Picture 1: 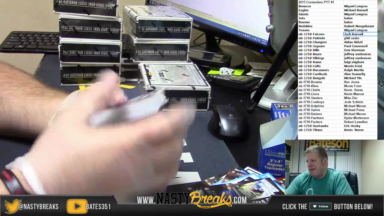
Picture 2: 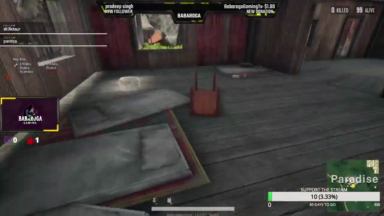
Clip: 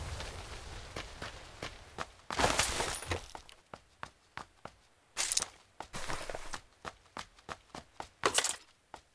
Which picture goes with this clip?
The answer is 2